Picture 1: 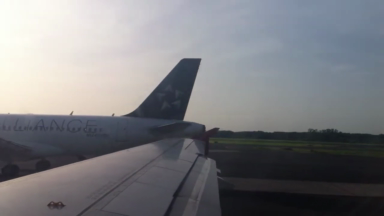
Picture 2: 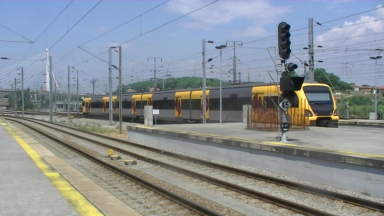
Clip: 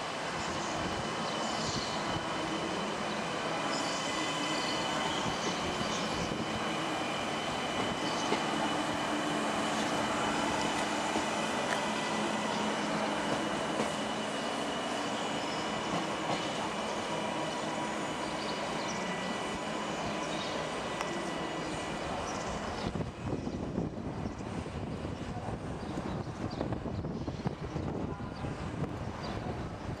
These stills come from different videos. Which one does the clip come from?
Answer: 2